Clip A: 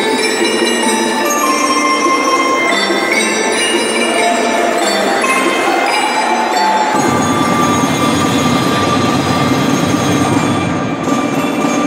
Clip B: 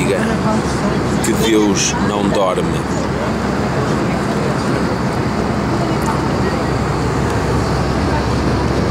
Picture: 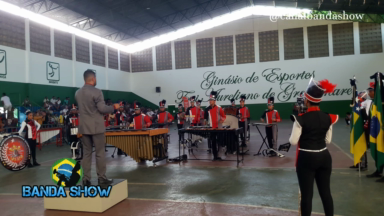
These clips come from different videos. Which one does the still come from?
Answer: A